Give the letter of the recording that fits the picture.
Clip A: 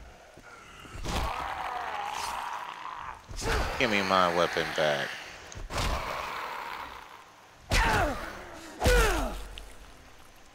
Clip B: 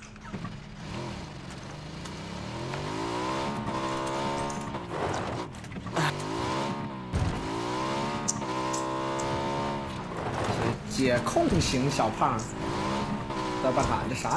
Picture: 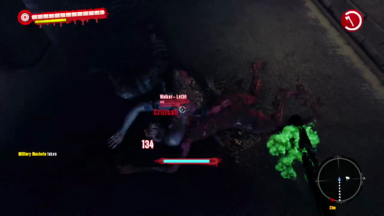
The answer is A